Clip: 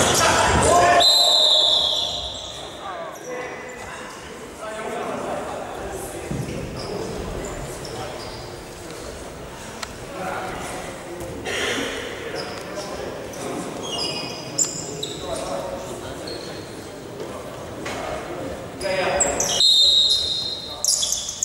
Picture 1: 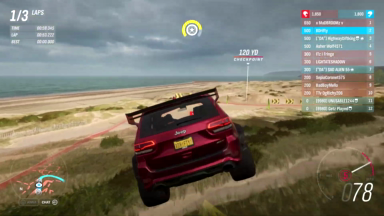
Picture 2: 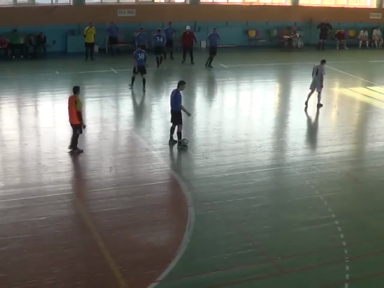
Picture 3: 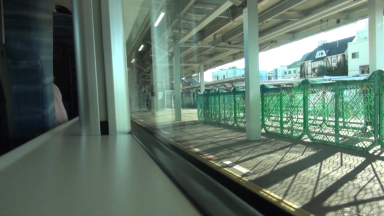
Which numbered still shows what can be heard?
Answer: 2